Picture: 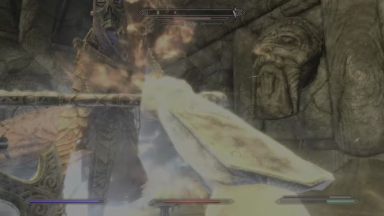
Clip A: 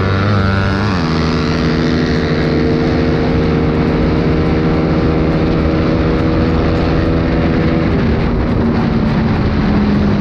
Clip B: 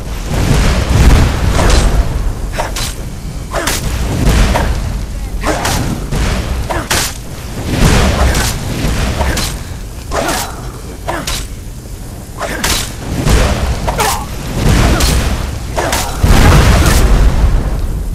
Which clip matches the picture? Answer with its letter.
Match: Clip B